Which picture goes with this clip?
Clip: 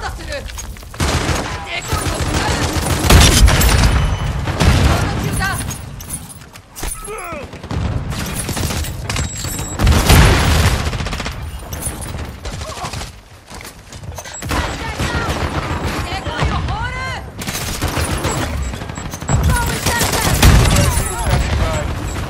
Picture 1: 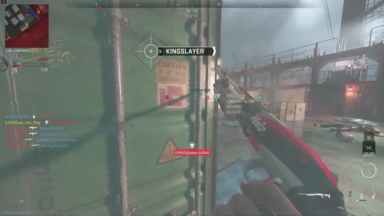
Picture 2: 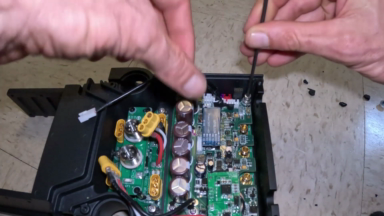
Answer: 1